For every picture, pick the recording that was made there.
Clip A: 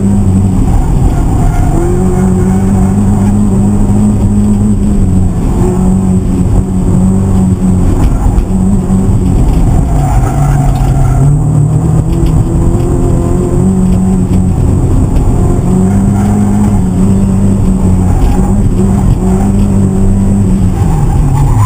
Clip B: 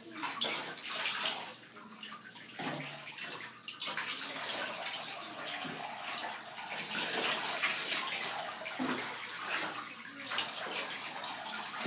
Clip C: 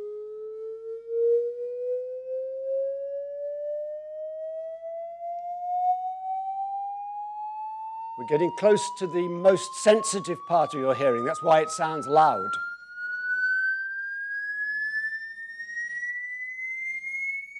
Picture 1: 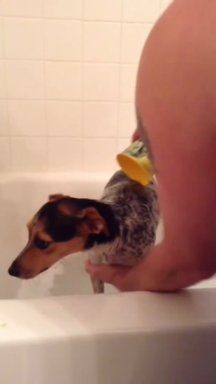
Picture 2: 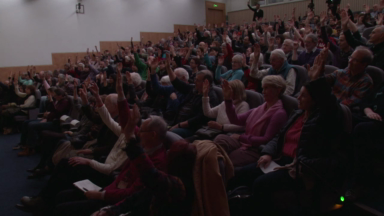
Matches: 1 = B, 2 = C